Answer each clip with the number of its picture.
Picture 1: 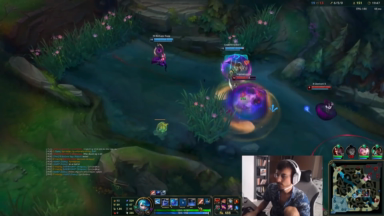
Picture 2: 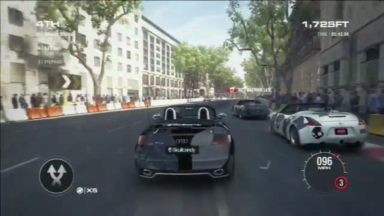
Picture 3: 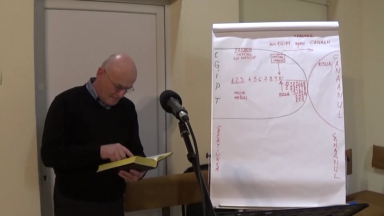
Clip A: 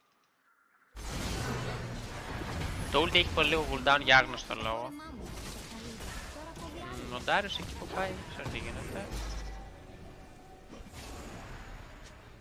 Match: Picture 1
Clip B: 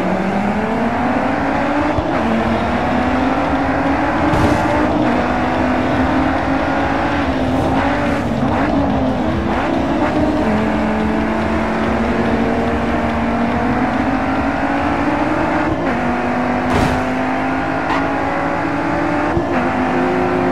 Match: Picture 2